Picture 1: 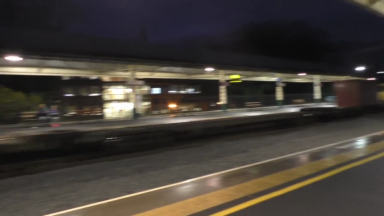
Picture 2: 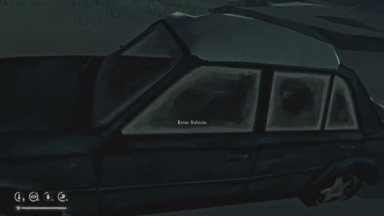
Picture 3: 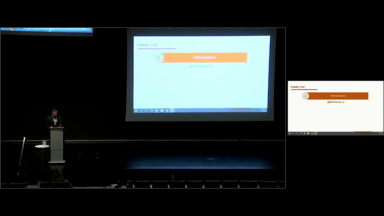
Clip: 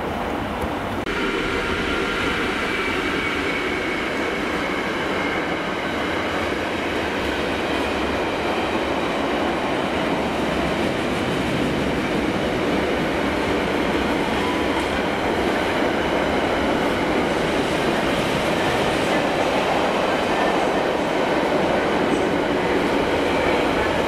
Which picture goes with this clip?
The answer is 1